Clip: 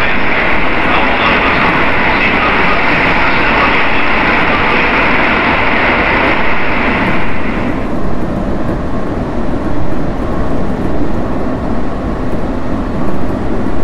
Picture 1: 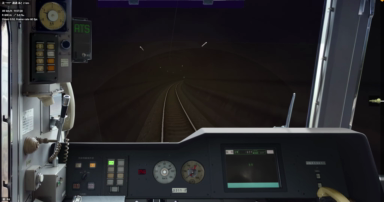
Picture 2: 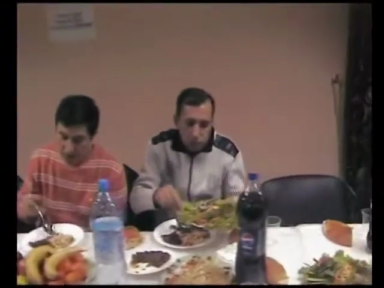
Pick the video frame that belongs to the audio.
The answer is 1